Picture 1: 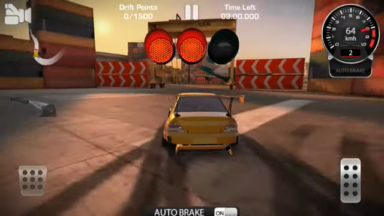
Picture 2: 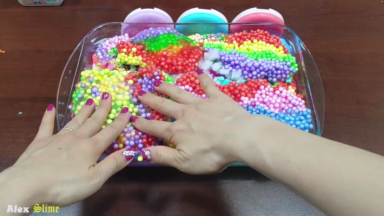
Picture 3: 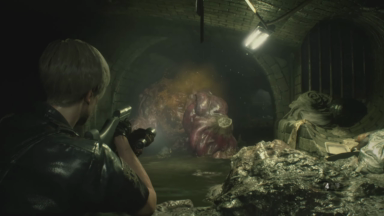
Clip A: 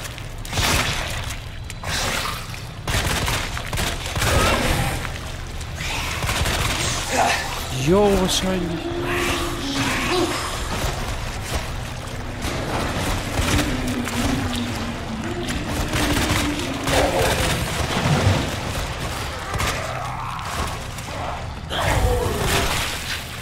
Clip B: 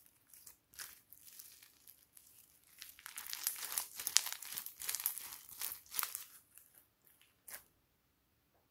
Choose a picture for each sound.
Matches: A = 3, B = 2